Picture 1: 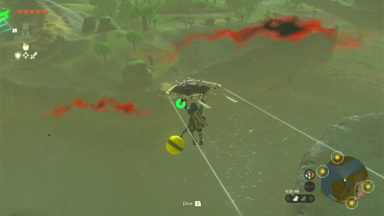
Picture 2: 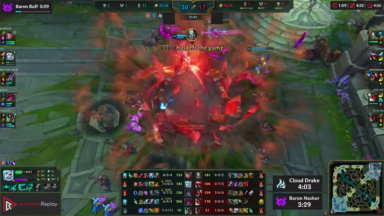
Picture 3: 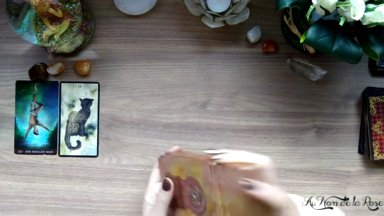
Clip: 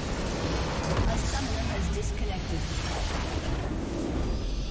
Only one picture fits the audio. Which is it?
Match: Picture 2